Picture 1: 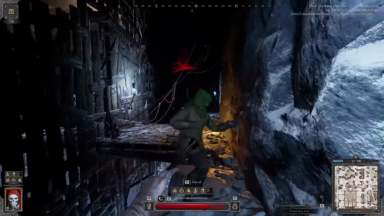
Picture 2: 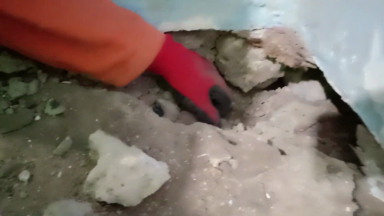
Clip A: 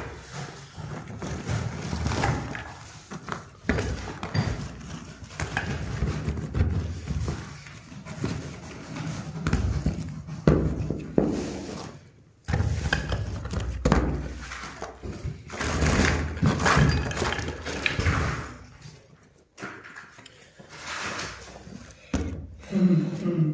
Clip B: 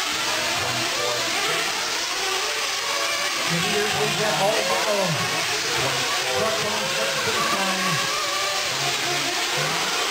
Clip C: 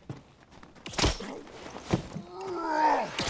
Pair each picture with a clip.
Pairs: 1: C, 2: A